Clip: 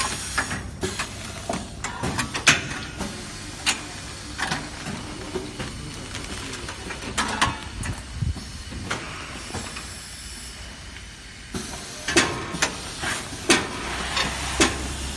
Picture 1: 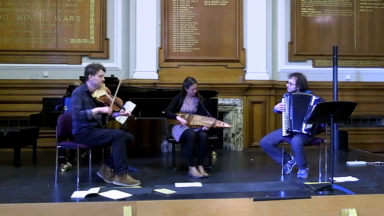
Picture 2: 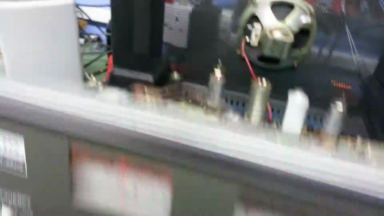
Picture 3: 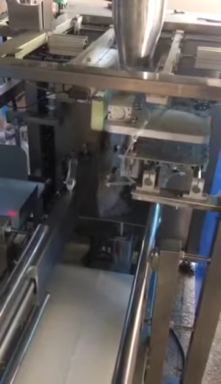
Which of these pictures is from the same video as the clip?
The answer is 3